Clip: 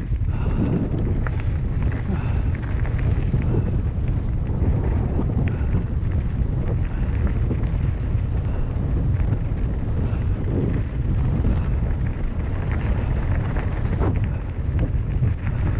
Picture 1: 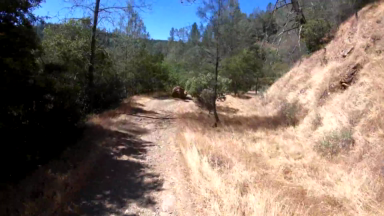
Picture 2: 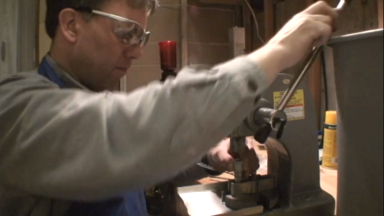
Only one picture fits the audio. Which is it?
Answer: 1